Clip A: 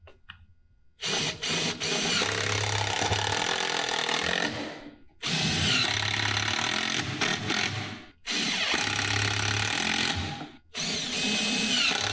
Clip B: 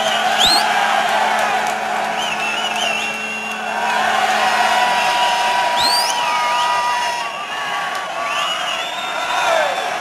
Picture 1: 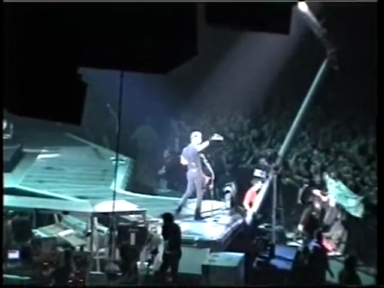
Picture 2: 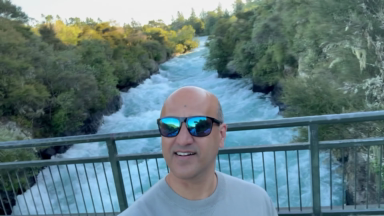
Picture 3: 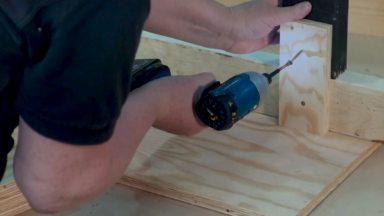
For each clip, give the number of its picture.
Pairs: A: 3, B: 1